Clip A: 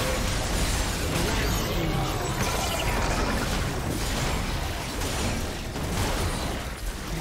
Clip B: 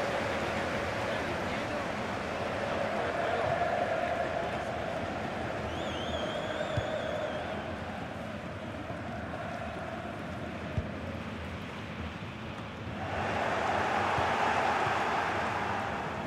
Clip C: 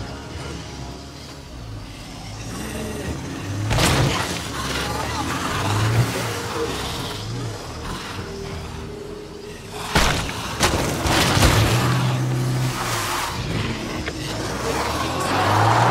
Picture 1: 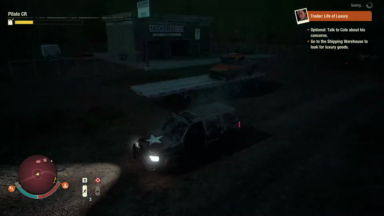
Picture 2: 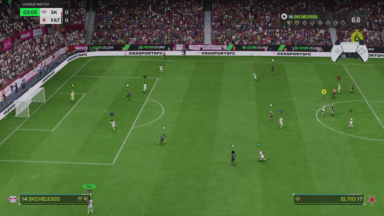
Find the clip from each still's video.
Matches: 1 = C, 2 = B